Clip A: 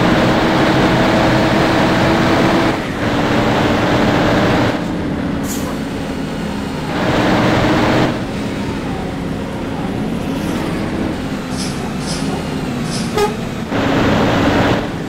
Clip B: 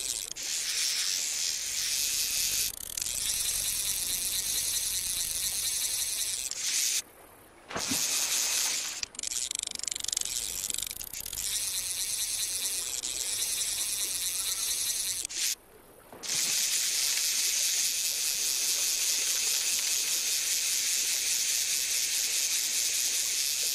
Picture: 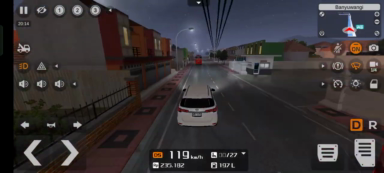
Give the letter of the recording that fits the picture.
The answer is A